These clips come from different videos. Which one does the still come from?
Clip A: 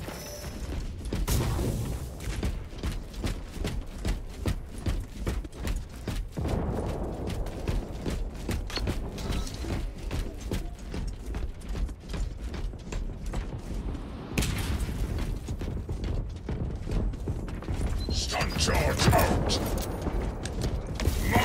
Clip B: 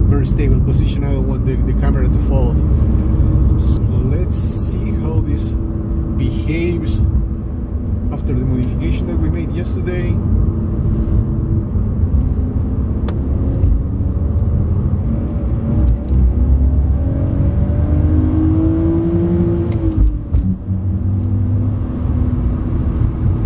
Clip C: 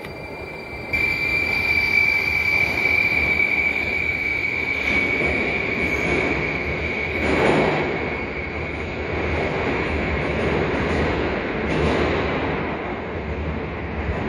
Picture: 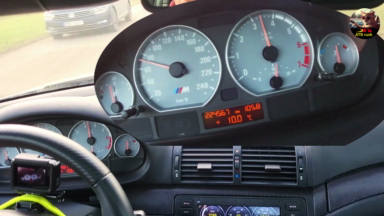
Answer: B